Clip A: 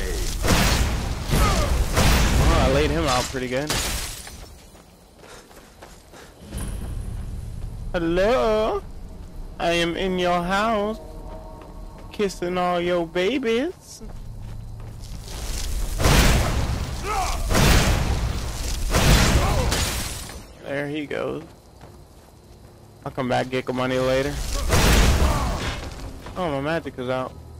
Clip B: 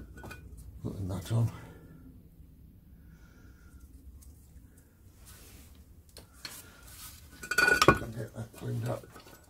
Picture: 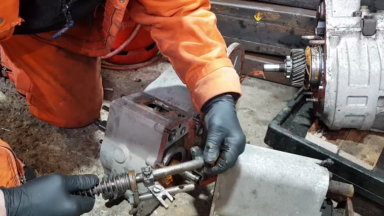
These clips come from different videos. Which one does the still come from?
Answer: B